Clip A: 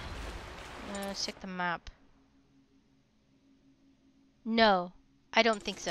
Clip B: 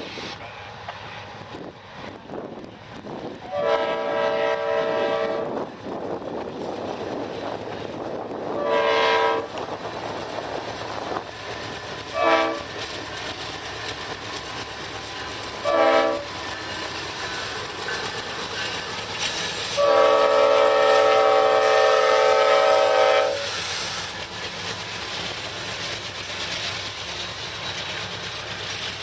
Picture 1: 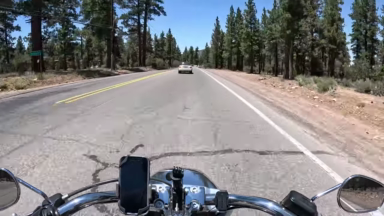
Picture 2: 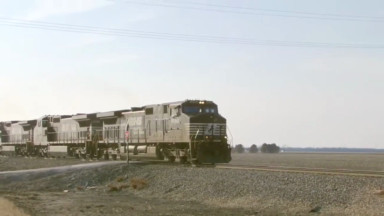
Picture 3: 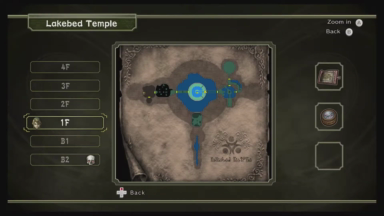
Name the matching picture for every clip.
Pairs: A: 3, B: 2